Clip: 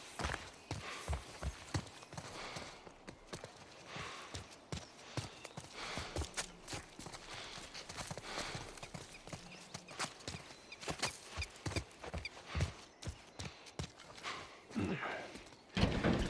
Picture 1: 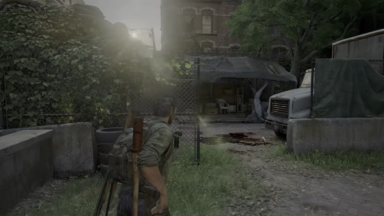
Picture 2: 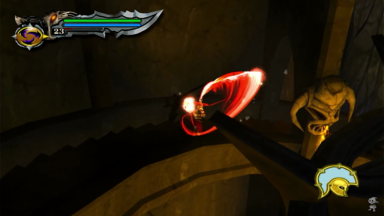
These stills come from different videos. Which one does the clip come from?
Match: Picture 1